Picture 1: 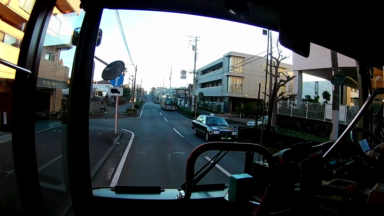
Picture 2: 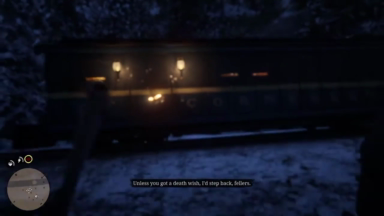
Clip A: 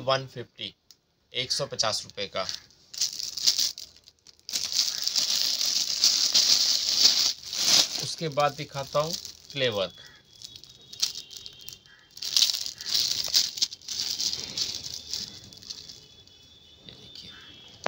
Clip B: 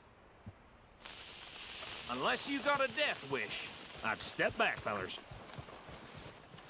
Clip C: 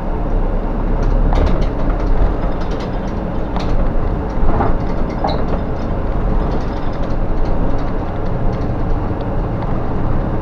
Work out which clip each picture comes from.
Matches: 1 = C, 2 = B